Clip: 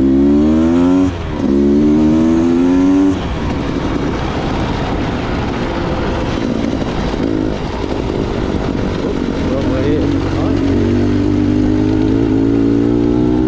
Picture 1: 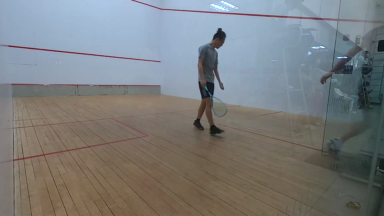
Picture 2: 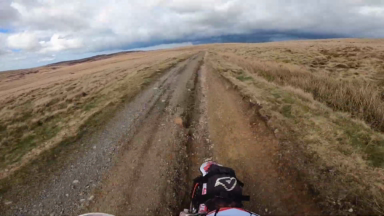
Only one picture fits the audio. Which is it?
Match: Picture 2